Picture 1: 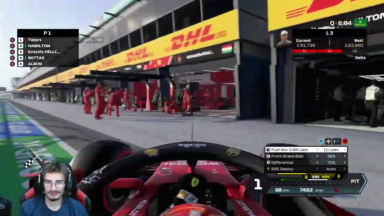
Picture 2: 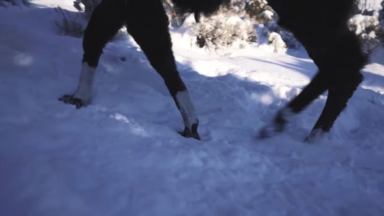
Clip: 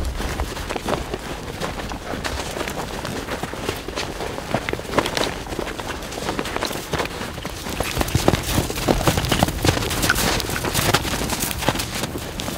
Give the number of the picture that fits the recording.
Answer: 2